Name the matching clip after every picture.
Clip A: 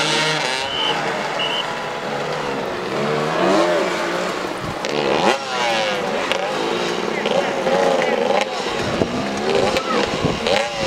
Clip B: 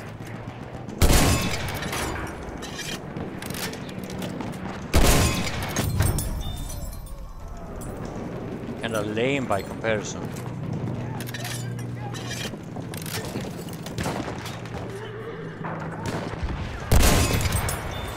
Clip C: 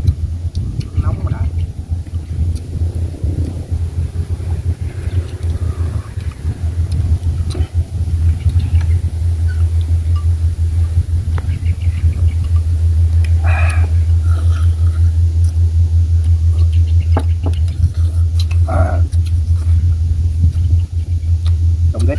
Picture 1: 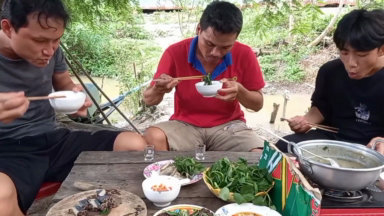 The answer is C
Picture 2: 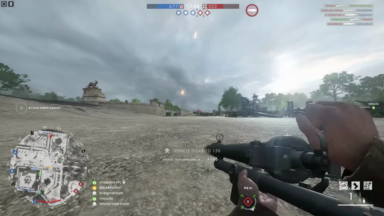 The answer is B